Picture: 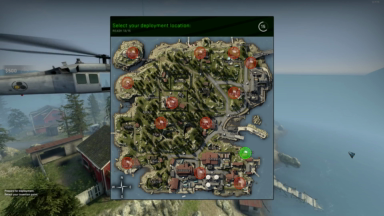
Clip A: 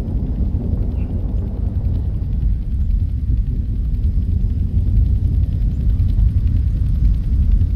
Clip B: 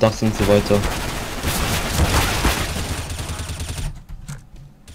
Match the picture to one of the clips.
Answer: A